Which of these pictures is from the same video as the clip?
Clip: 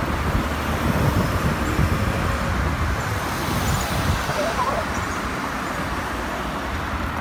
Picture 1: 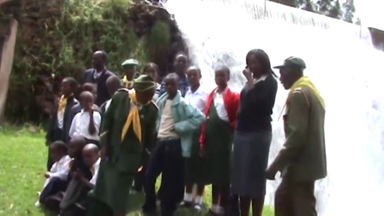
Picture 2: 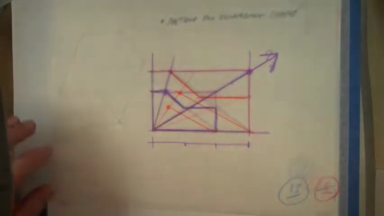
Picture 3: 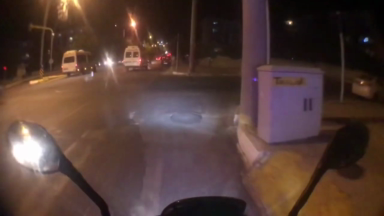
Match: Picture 3